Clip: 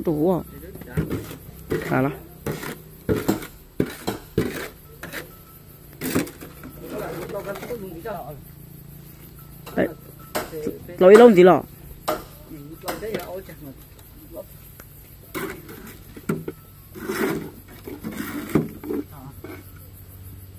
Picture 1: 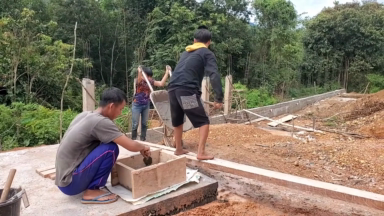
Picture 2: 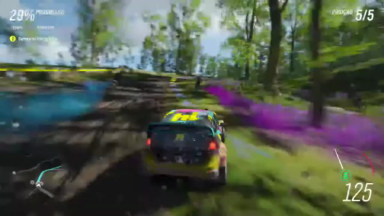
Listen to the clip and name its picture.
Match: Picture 1